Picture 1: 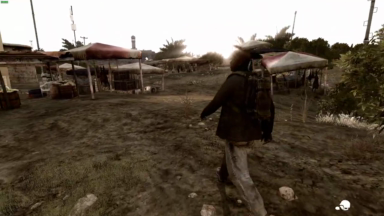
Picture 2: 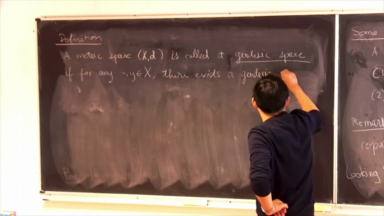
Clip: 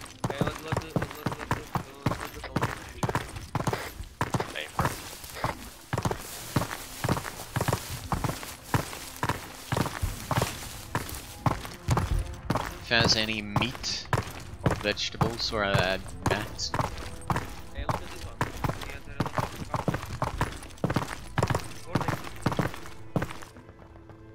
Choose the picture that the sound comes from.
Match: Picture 1